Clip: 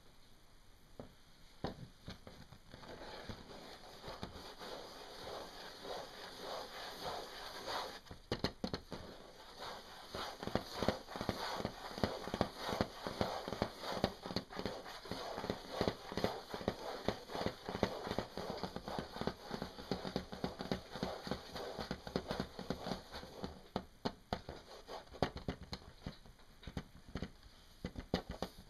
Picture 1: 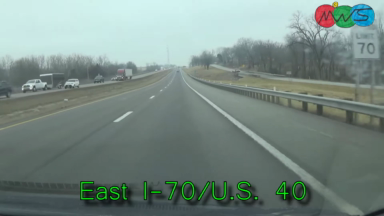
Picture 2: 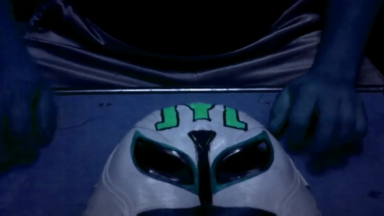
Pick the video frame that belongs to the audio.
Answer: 2